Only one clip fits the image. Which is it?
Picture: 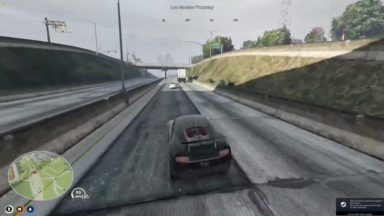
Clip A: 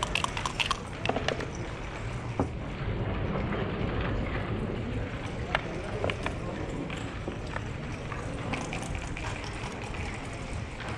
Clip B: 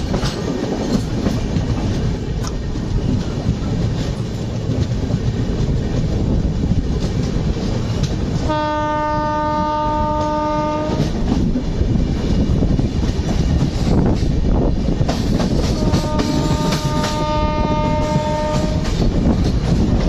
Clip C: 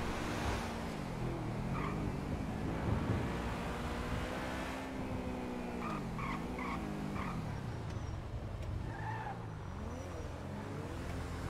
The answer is C